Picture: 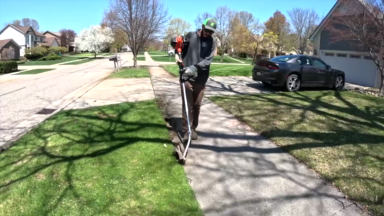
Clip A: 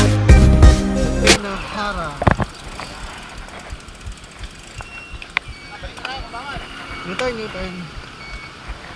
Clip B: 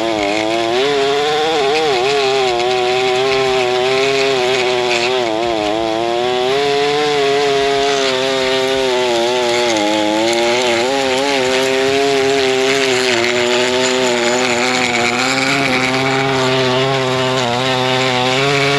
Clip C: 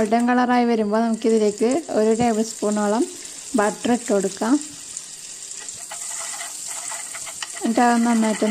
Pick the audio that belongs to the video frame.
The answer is B